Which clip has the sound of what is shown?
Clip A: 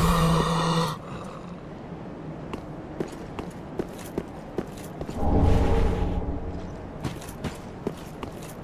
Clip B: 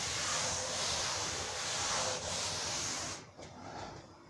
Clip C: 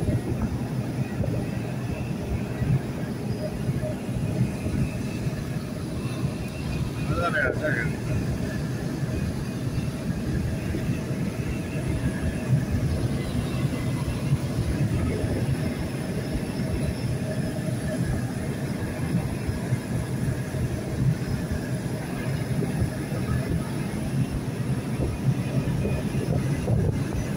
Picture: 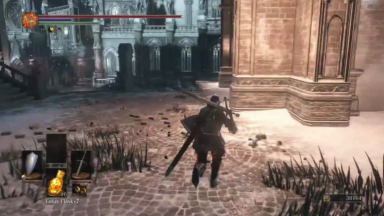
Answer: A